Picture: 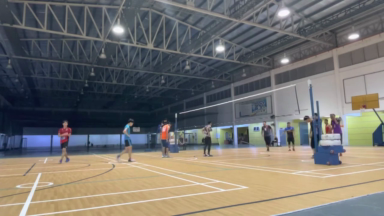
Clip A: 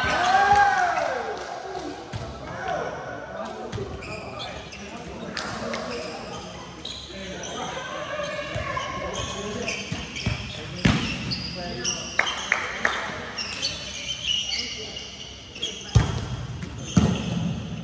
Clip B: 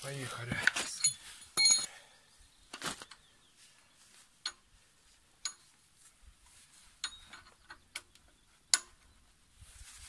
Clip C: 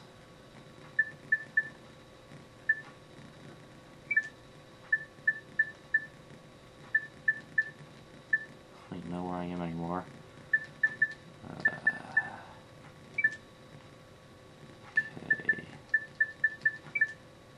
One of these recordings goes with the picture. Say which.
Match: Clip A